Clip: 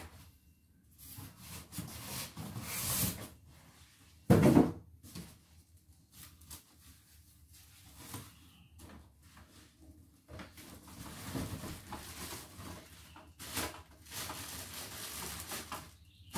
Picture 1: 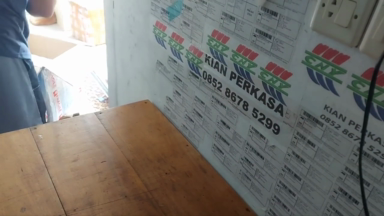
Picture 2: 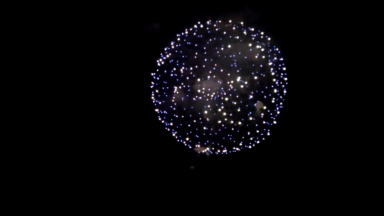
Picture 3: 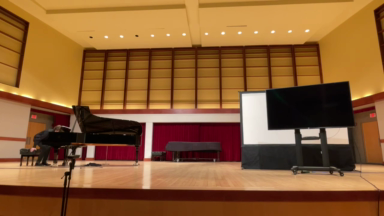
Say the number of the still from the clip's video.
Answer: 1